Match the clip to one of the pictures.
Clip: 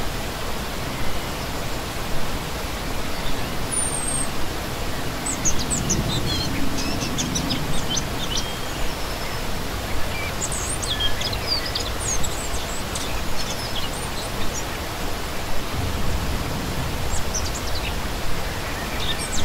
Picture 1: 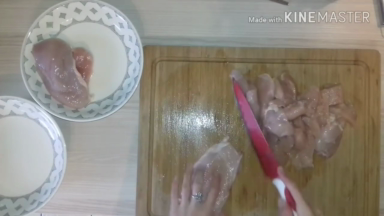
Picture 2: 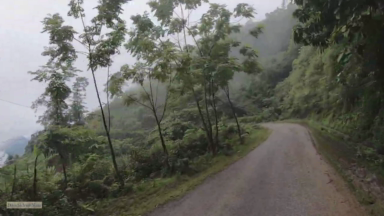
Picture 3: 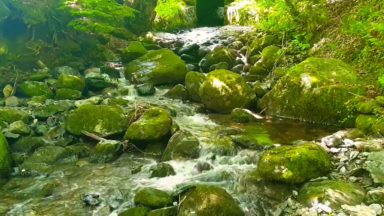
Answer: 3